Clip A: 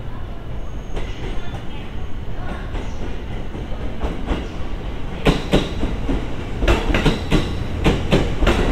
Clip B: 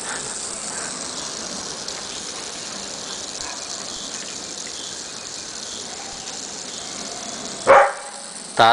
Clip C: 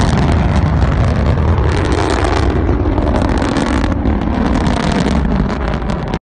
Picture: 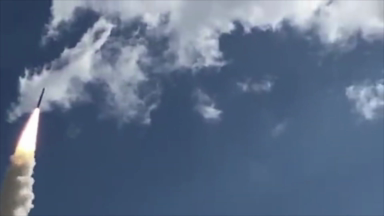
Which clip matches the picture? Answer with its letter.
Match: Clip C